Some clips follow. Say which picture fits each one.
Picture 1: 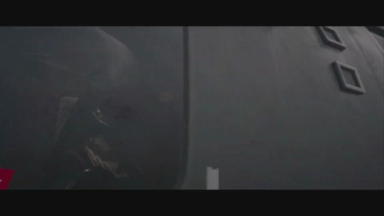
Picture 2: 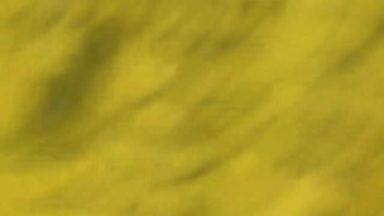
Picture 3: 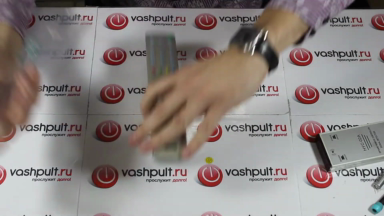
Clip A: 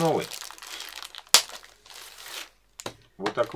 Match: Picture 3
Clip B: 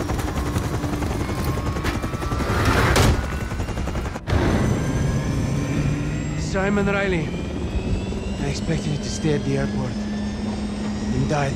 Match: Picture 1